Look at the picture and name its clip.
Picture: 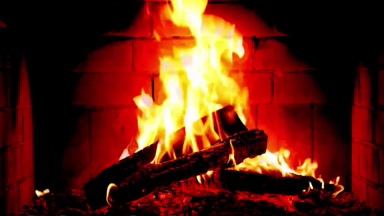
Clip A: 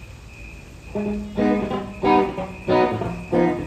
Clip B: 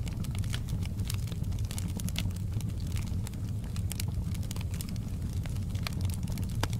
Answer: B